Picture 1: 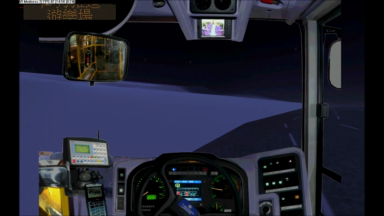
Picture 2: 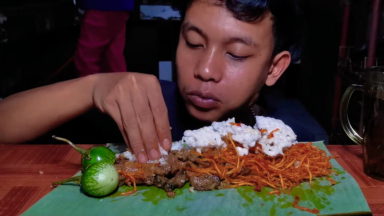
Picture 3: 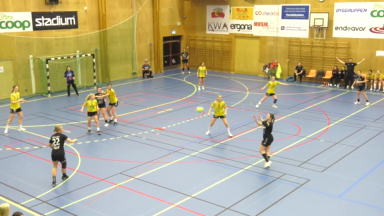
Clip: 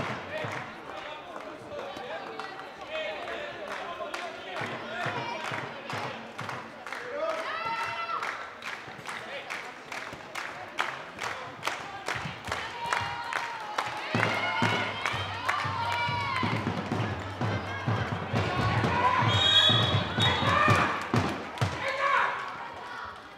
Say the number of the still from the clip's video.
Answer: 3